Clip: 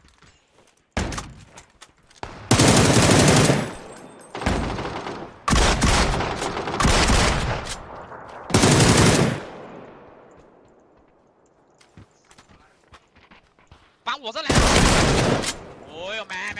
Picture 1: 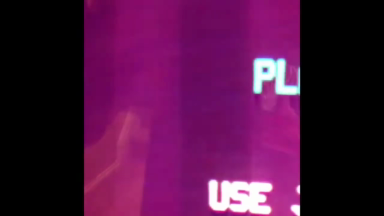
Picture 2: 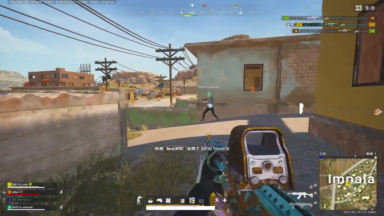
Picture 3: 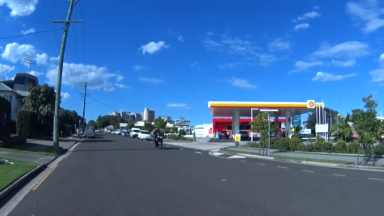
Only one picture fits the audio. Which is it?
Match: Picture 2